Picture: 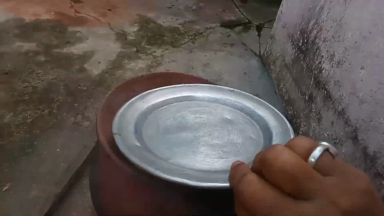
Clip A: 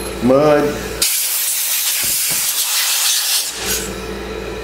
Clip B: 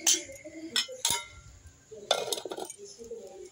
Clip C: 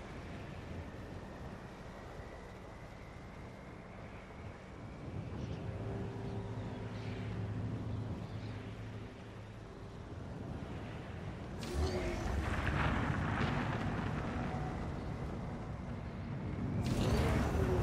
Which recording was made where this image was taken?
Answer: B